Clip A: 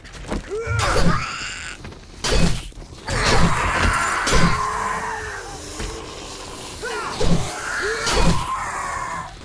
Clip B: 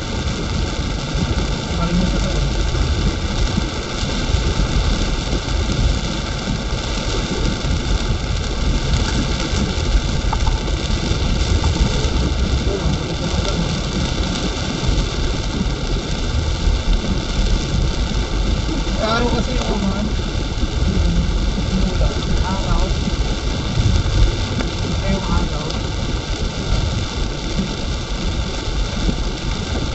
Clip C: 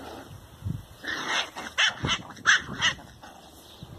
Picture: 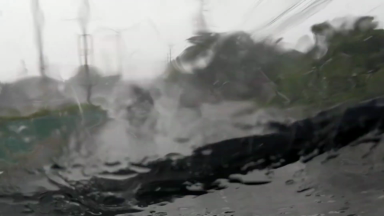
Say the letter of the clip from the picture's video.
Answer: B